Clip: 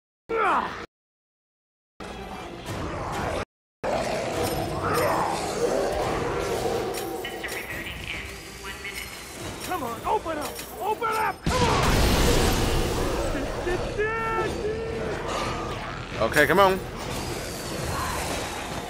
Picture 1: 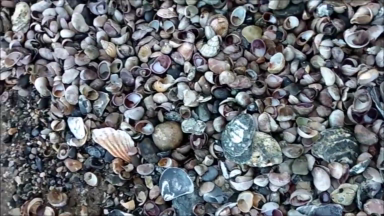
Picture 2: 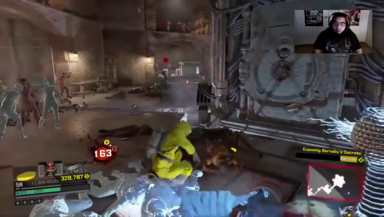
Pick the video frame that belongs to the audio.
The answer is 2